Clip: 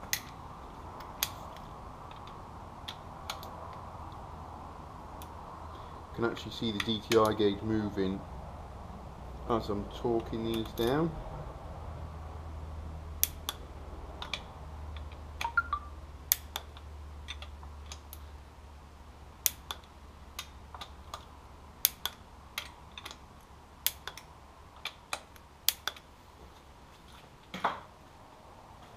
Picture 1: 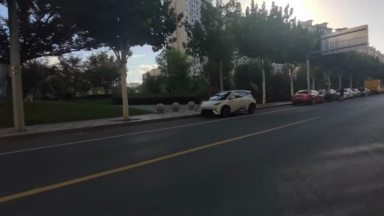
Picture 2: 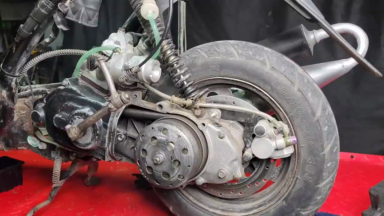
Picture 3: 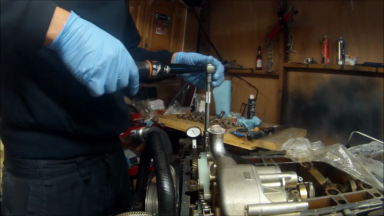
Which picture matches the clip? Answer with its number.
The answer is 3